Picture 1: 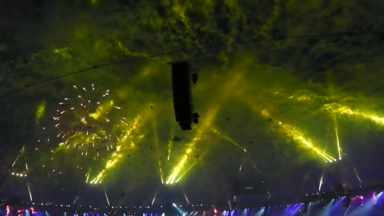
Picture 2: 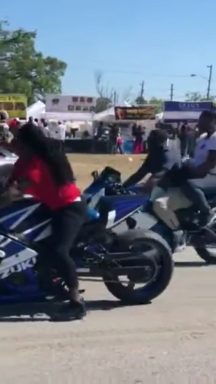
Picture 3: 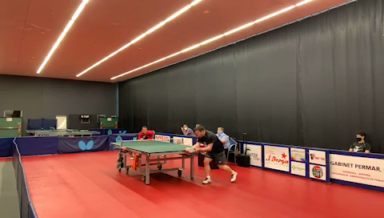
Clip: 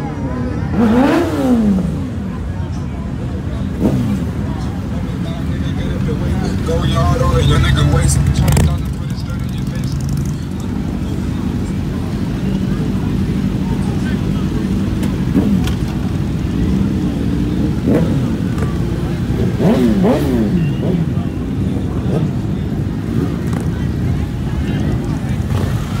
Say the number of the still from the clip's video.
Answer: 2